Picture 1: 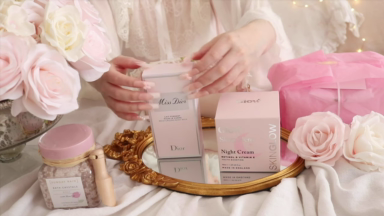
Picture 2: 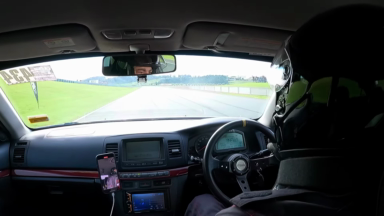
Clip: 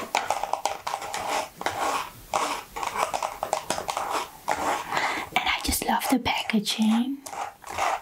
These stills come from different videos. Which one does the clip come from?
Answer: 1